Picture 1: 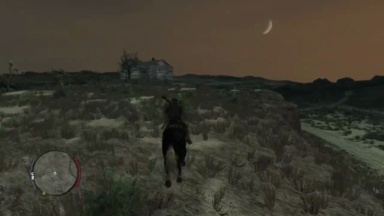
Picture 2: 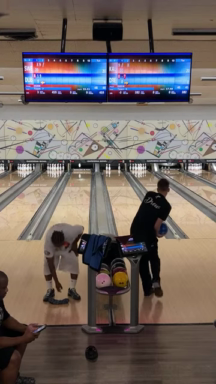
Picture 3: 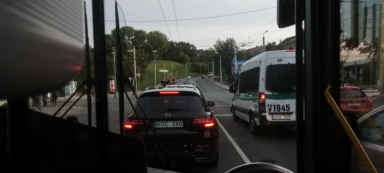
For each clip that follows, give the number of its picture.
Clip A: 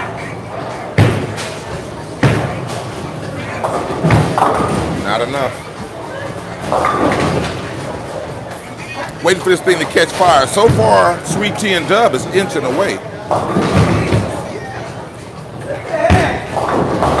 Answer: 2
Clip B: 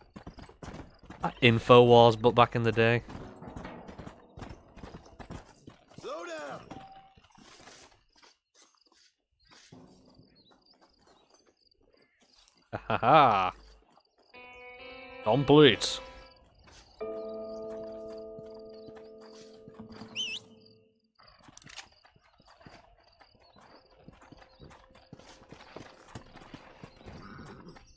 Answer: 1